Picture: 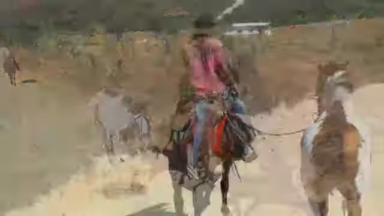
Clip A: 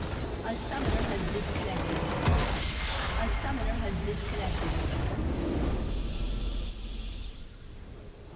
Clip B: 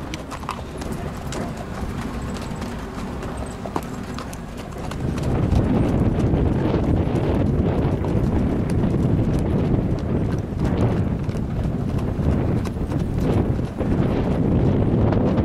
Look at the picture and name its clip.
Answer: B